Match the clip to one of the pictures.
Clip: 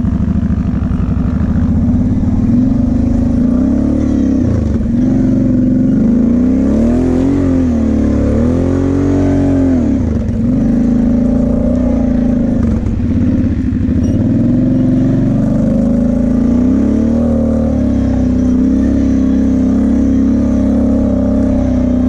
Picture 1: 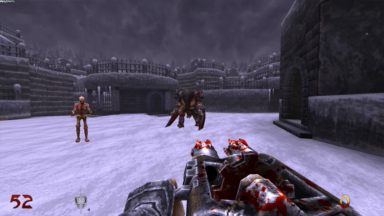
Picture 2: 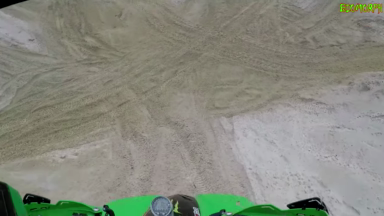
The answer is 2